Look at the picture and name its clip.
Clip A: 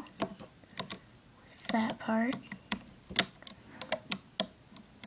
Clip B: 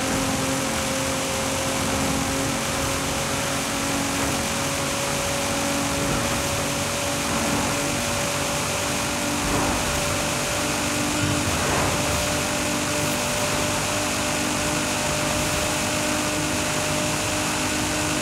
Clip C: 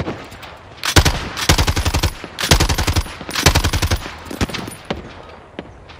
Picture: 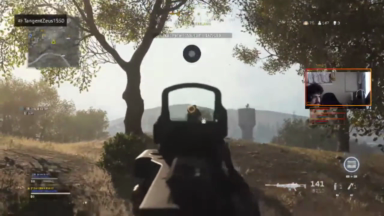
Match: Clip C